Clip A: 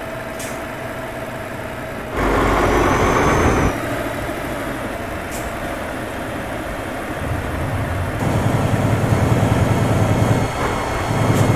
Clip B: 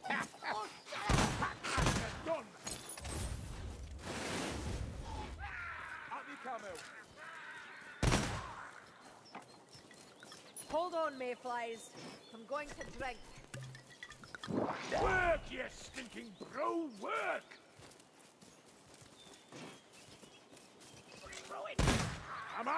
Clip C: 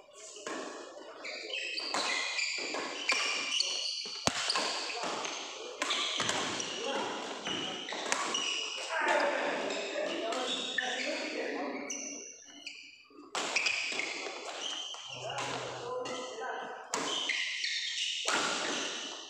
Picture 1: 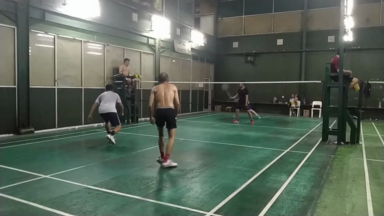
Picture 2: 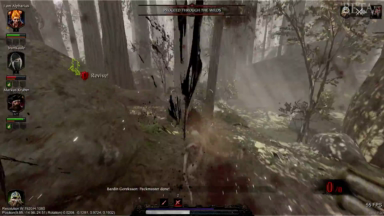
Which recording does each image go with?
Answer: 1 C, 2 B